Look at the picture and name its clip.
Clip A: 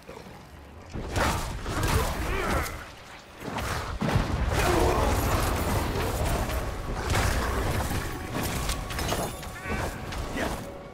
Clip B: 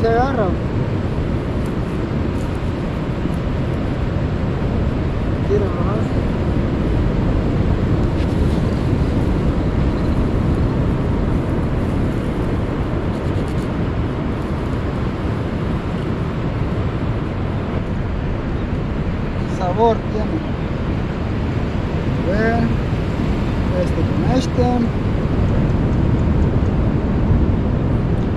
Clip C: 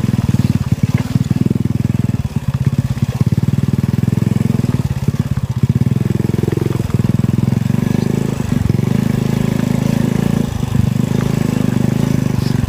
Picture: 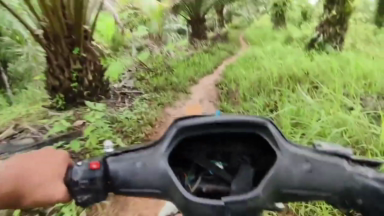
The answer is C